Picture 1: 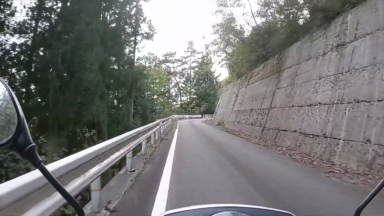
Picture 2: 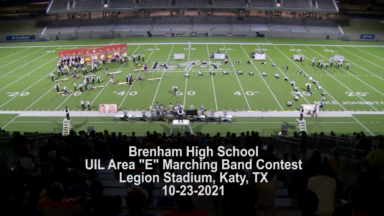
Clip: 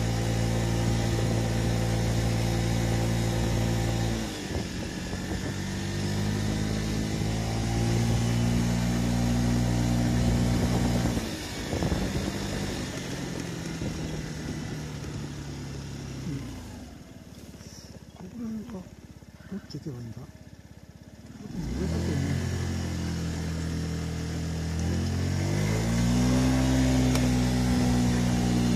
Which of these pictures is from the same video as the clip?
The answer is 1